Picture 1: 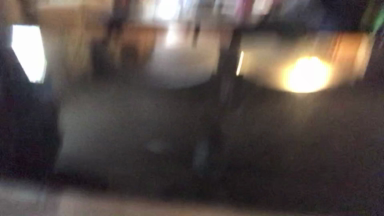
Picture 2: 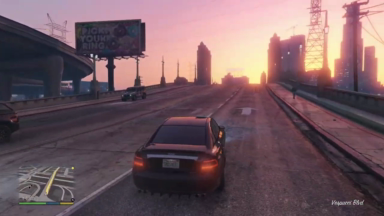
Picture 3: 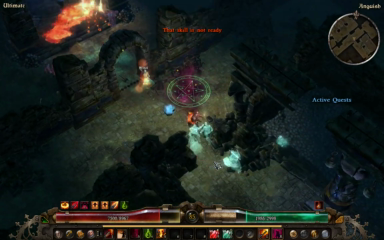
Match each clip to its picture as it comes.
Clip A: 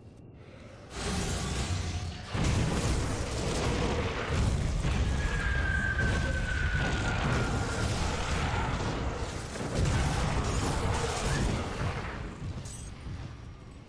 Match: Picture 3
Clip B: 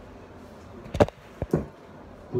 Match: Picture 1